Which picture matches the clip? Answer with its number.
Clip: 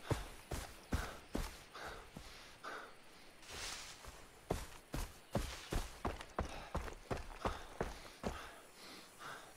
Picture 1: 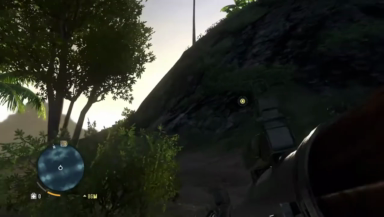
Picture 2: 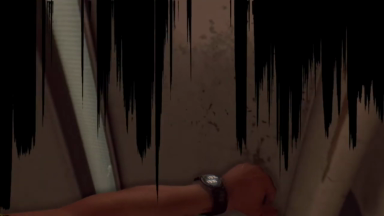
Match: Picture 1